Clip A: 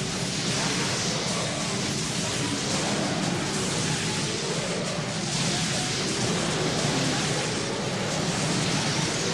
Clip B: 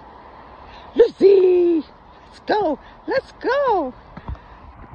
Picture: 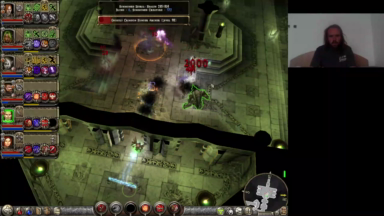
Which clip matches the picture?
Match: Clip A